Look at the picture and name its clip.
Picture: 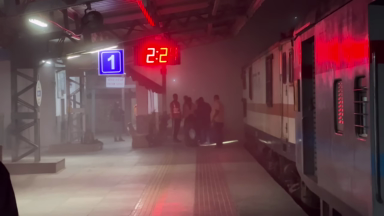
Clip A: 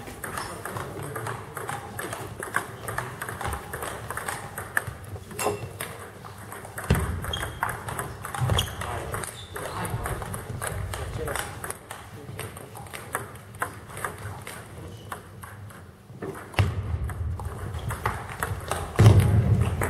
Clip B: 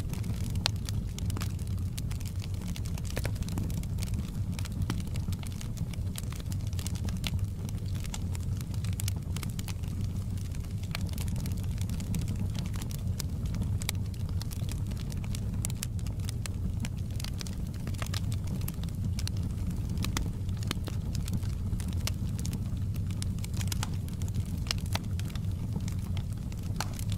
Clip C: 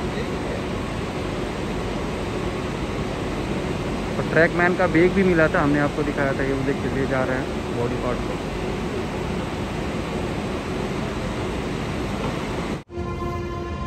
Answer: C